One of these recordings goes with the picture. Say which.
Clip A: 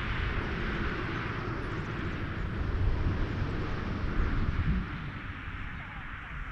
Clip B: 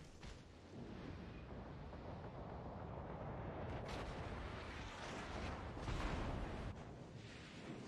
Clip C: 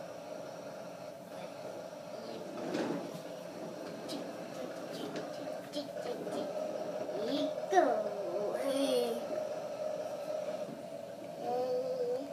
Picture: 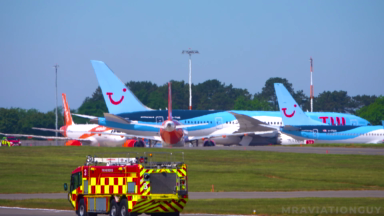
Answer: A